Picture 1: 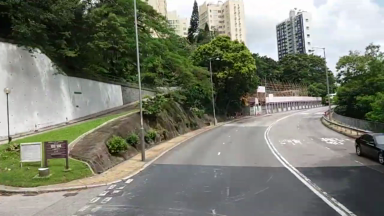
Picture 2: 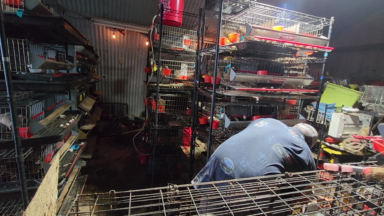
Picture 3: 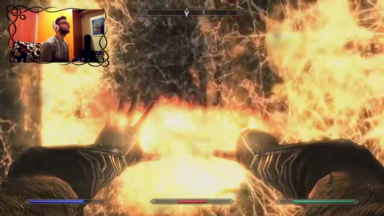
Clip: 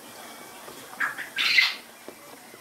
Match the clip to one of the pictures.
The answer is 2